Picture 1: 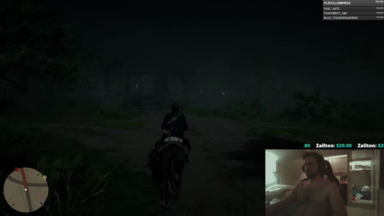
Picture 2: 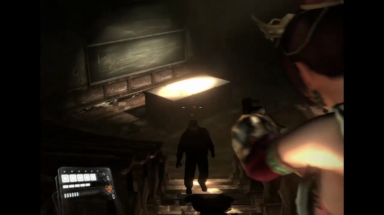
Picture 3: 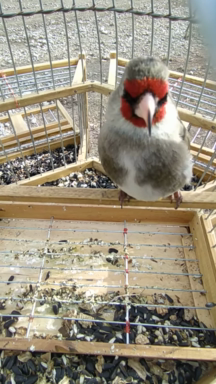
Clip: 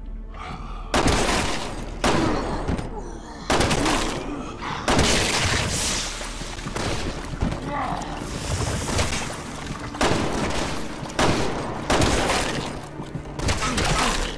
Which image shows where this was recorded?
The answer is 2